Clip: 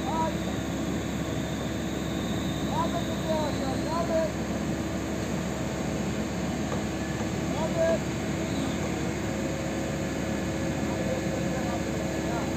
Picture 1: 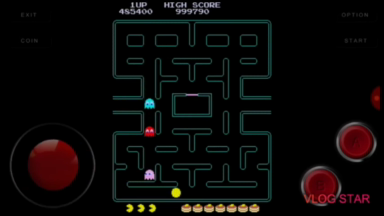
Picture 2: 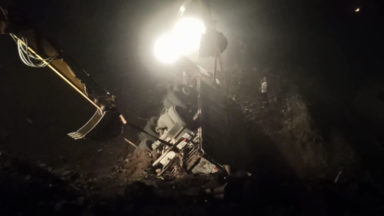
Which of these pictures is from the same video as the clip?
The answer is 2